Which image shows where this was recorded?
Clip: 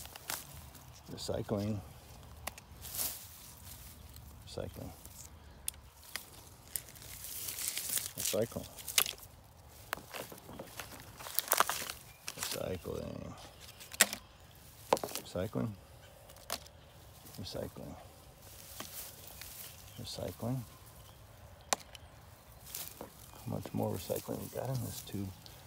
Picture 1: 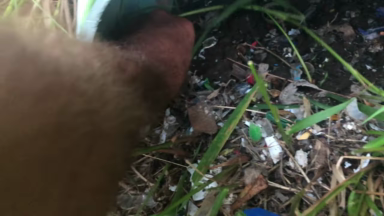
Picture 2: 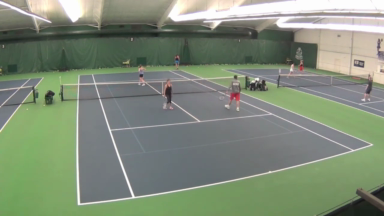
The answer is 1